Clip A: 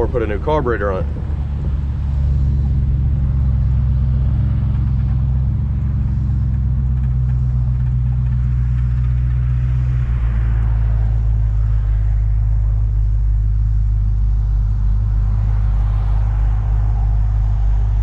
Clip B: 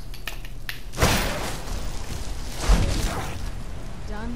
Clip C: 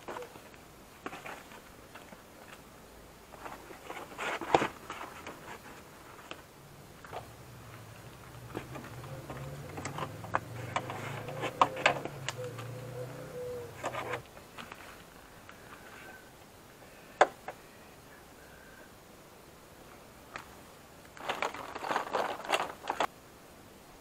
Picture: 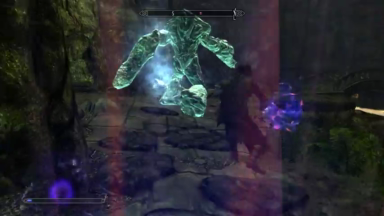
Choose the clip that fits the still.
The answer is B